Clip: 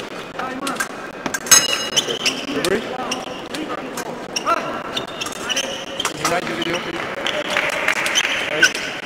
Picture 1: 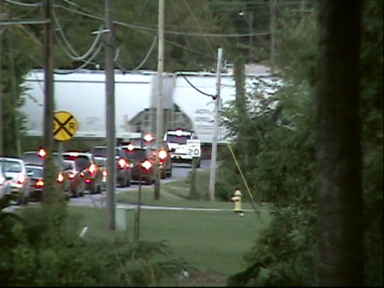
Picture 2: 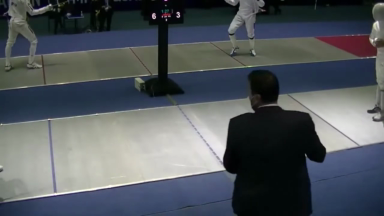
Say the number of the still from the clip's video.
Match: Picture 2